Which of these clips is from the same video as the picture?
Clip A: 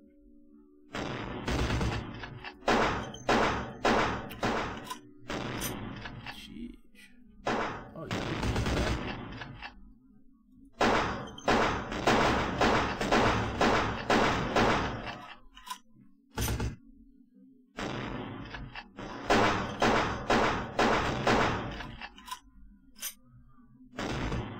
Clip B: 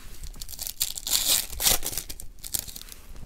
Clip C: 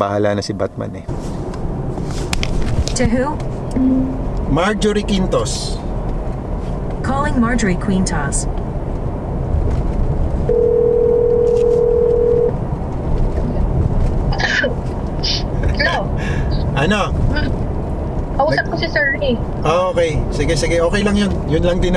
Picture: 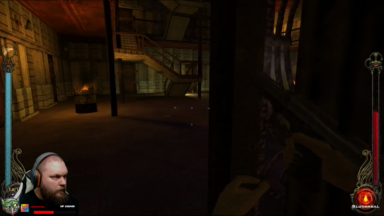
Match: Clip A